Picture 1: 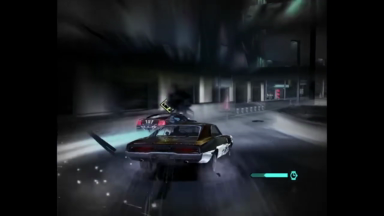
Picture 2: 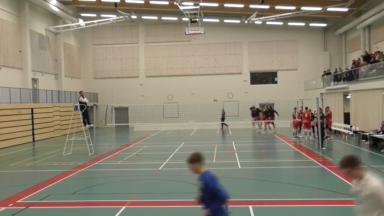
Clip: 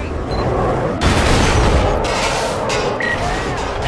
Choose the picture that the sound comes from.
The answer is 1